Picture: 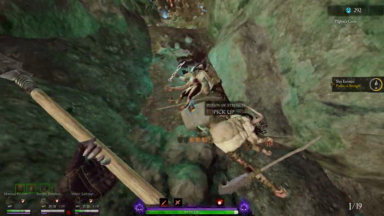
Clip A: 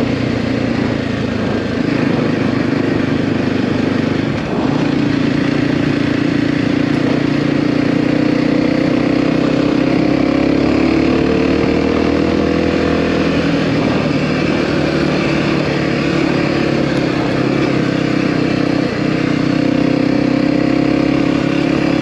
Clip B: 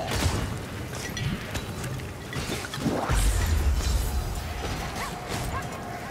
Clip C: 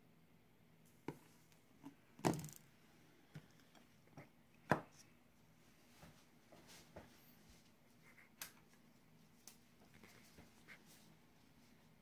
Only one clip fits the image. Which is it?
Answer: B